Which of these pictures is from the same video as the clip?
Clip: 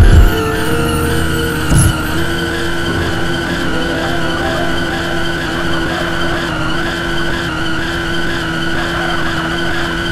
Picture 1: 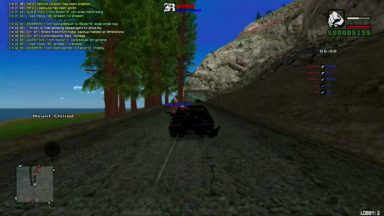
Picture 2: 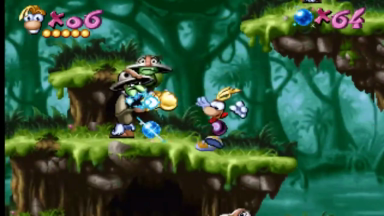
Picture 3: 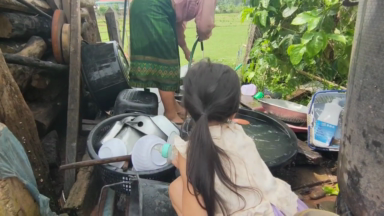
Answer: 1